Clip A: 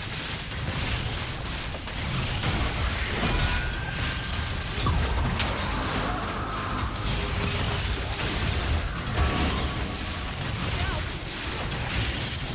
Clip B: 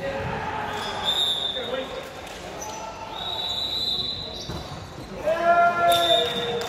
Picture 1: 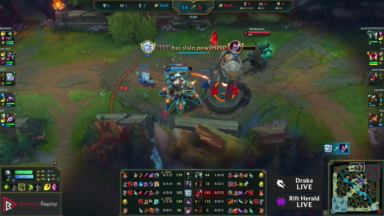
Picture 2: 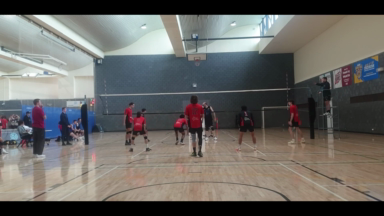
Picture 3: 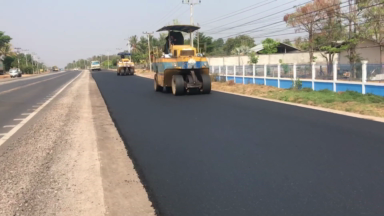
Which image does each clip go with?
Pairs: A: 1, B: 2